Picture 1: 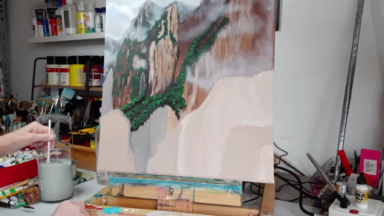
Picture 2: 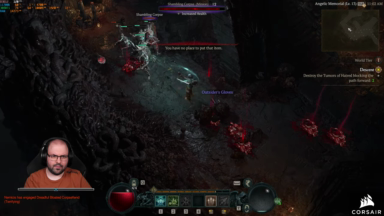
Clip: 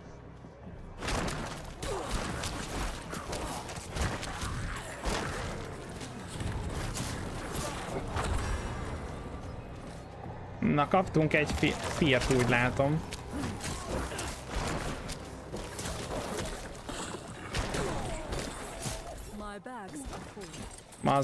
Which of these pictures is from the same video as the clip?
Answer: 2